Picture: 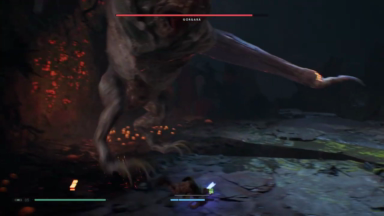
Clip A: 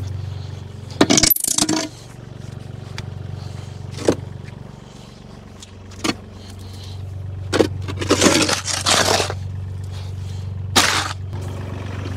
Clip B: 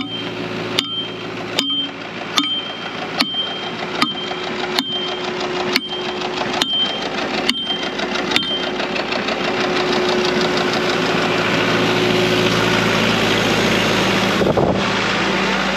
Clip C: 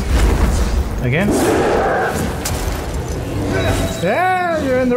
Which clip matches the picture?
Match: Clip C